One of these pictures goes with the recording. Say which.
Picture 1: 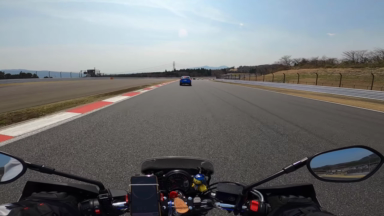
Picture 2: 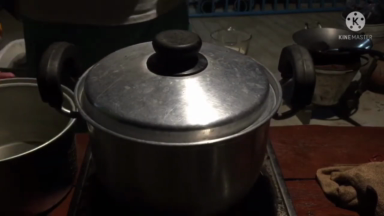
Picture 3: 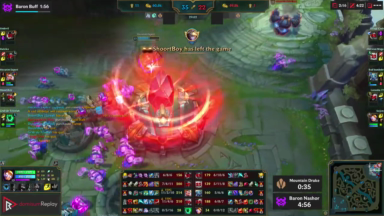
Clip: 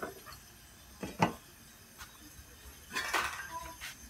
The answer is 2